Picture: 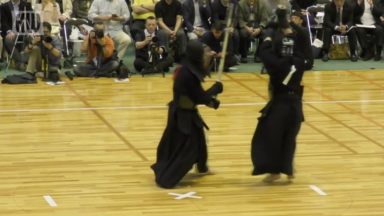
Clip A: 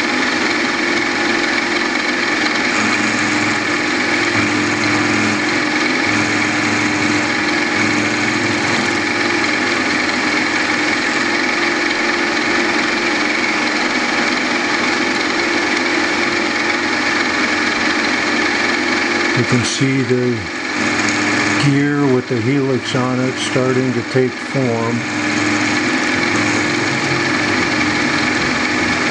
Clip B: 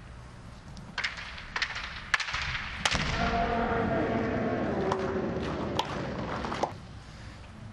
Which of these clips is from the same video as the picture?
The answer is B